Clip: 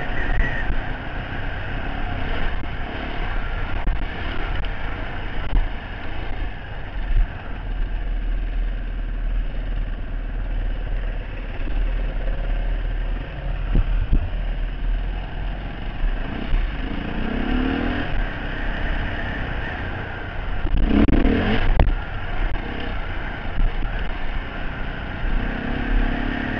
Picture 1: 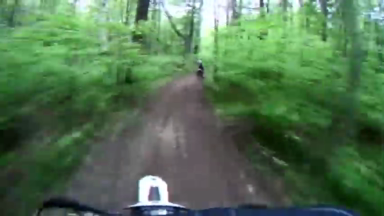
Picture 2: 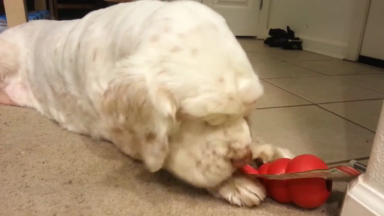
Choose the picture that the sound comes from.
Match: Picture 1